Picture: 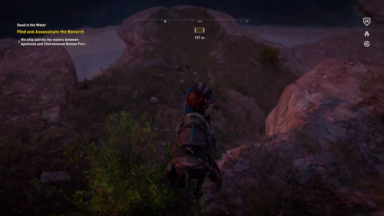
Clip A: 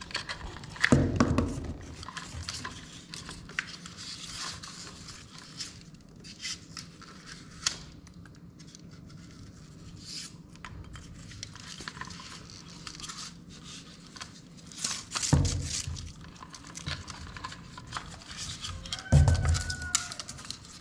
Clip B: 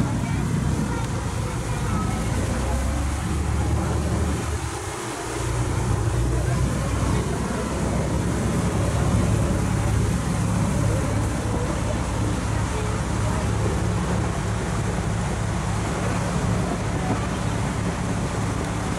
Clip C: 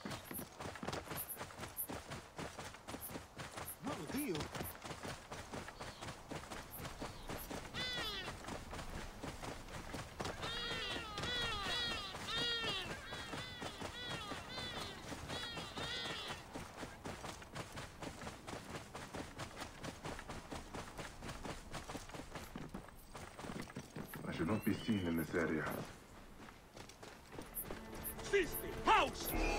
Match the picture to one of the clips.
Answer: C